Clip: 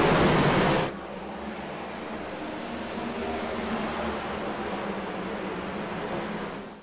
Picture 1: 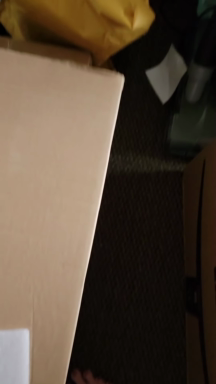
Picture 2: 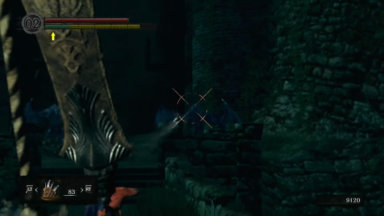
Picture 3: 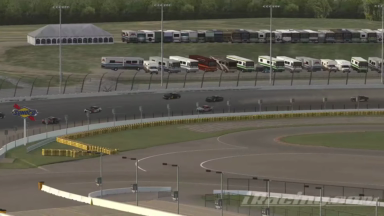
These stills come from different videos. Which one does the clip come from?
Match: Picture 3